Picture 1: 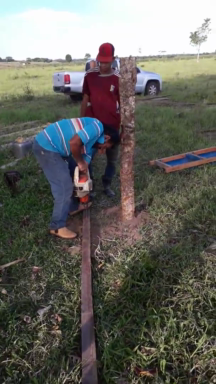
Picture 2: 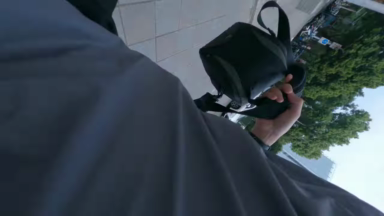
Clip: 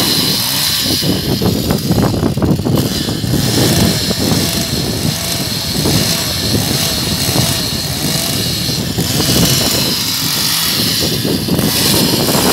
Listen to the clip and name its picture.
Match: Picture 1